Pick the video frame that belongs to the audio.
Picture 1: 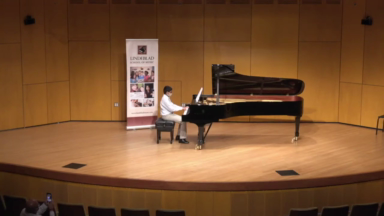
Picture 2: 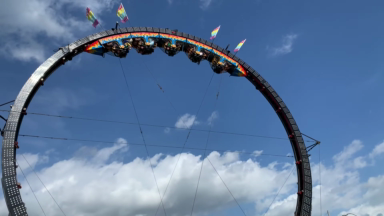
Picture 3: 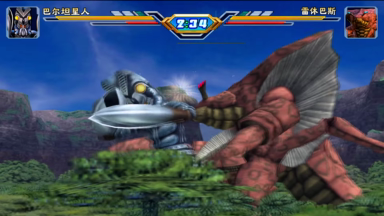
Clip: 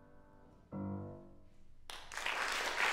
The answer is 1